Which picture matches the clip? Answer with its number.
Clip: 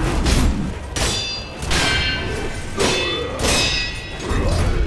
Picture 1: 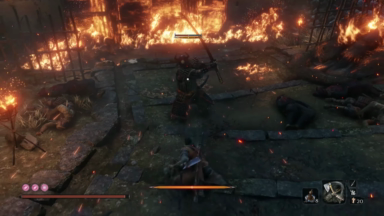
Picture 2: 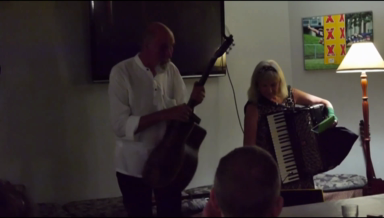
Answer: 1